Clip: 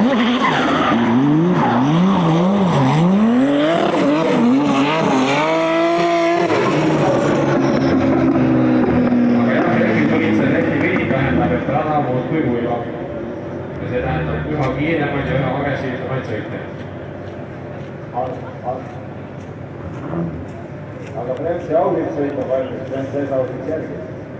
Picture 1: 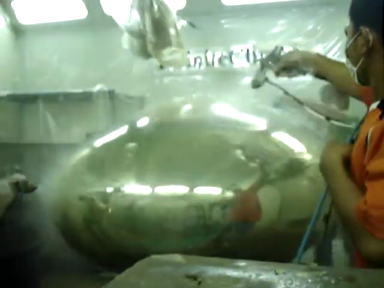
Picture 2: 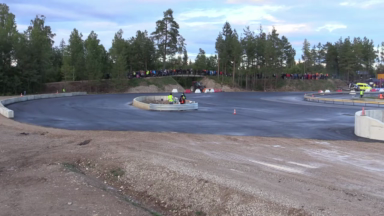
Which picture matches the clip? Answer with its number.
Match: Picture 2